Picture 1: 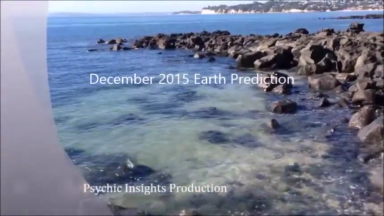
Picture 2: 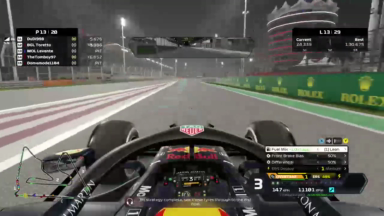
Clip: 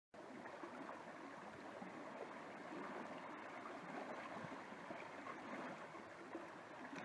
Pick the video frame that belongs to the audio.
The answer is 1